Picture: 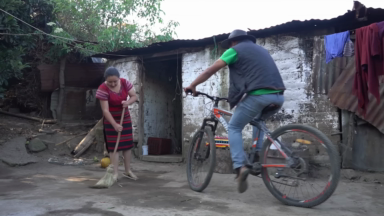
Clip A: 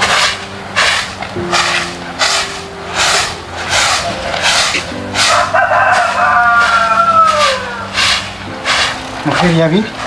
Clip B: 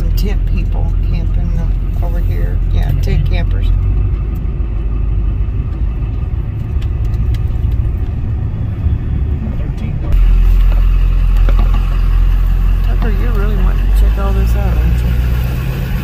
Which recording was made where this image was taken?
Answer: A